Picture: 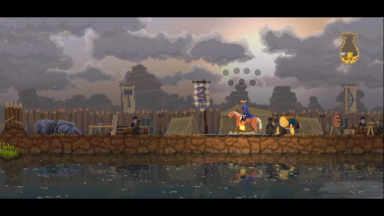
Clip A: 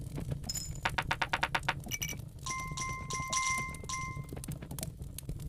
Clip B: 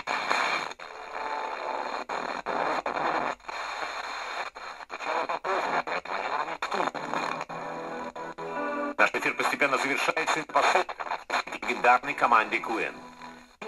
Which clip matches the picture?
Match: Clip A